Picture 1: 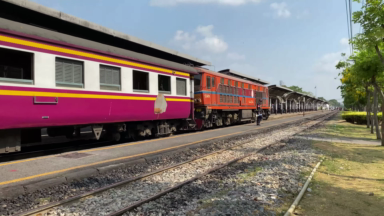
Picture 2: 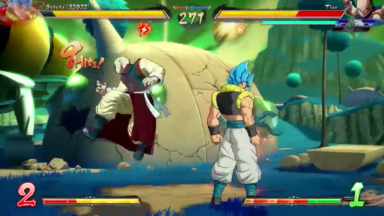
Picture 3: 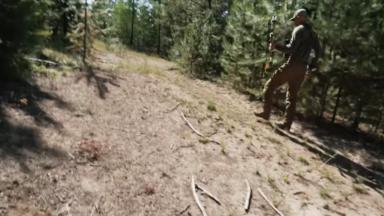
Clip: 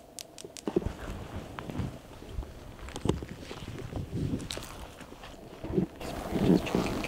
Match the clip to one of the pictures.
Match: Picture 3